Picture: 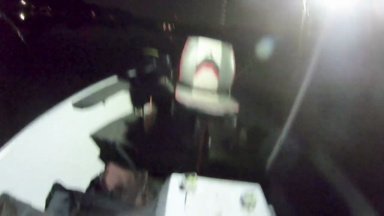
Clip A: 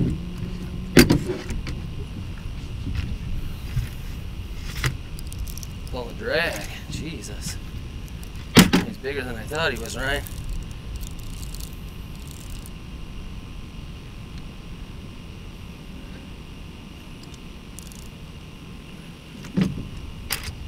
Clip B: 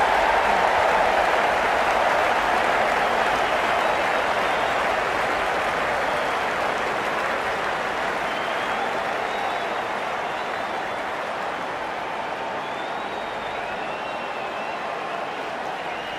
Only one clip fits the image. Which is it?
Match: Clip A